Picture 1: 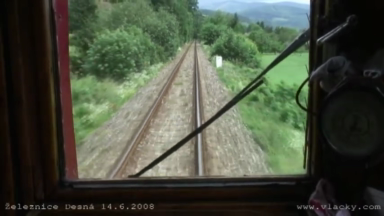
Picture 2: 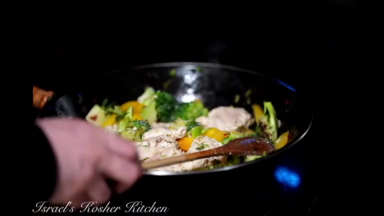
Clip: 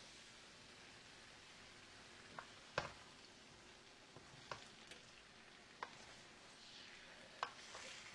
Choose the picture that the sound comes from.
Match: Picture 2